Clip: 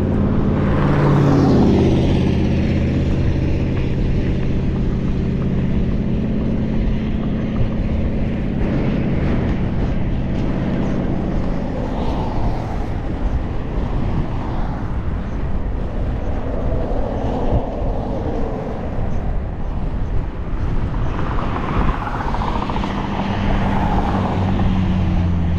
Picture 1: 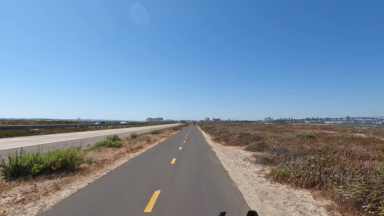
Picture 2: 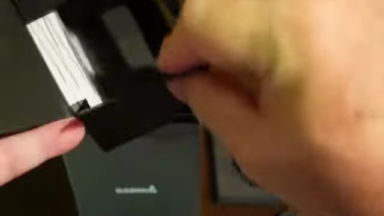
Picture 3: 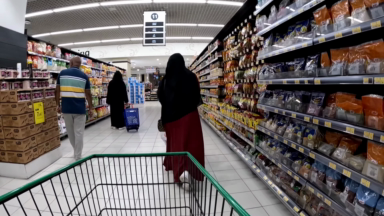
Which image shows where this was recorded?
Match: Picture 1